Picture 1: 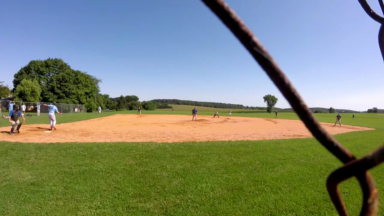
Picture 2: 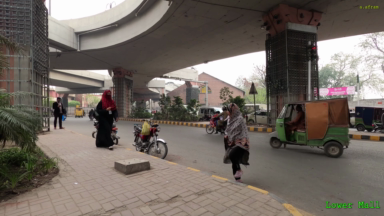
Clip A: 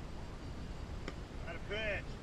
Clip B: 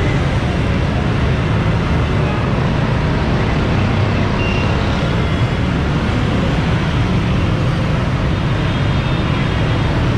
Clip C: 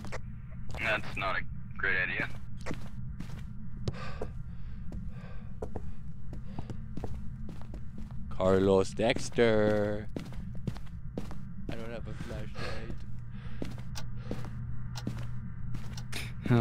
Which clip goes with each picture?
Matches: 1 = A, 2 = B